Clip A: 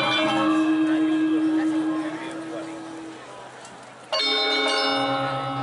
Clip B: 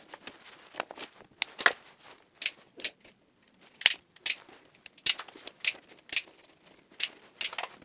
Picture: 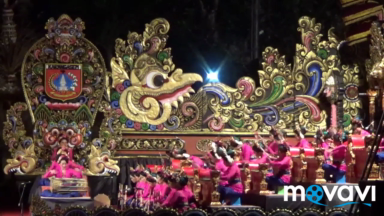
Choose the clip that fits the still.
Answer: A